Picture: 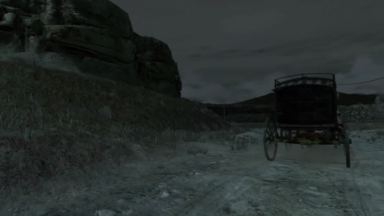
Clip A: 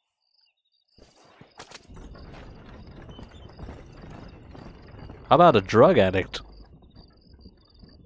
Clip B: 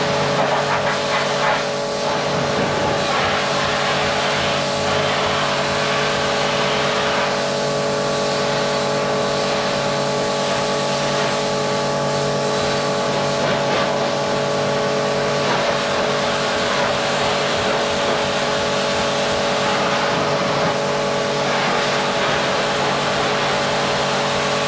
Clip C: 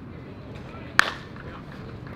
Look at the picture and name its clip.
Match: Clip A